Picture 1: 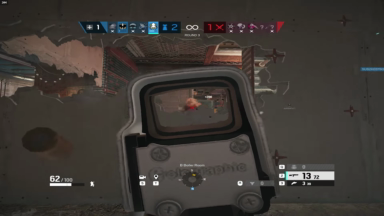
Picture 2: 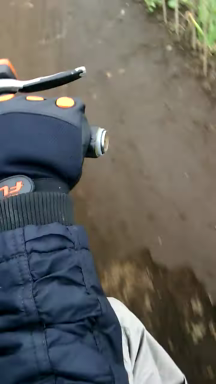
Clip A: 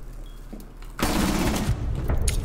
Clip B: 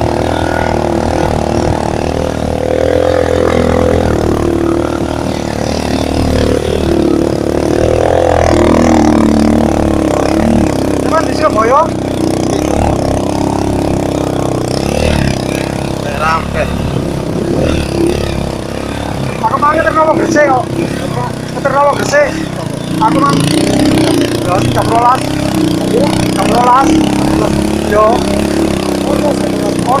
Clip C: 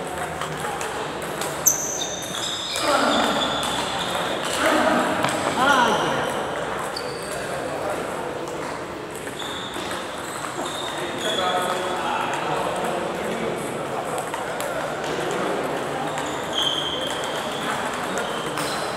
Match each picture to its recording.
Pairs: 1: A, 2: B